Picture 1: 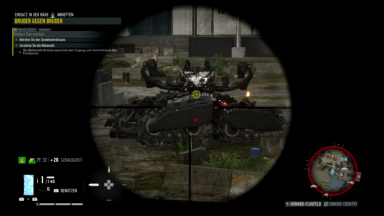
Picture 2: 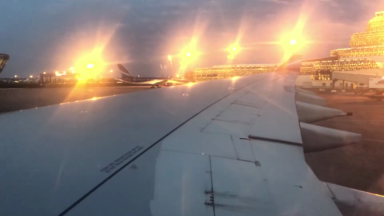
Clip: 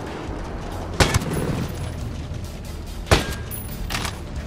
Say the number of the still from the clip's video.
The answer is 1